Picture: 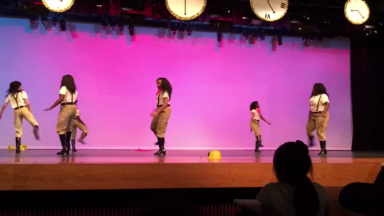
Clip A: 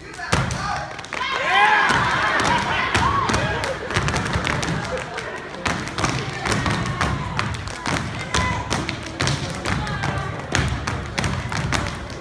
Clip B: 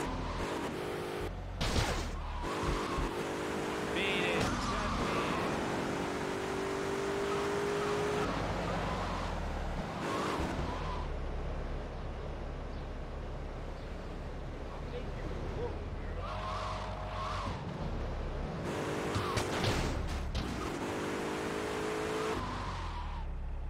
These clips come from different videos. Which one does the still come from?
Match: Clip A